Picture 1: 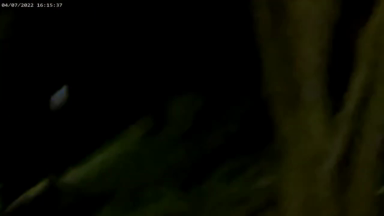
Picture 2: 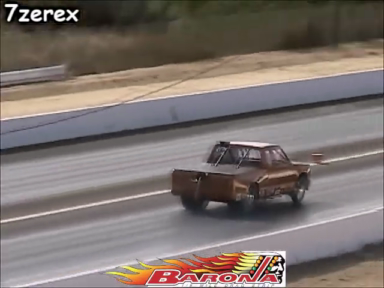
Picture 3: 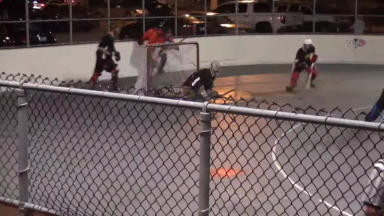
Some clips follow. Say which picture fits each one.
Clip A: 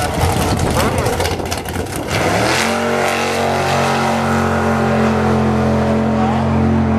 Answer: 2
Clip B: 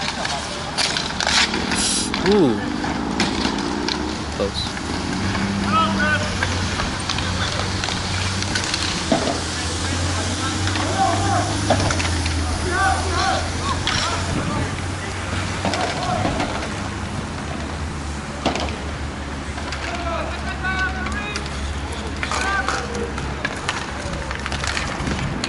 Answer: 3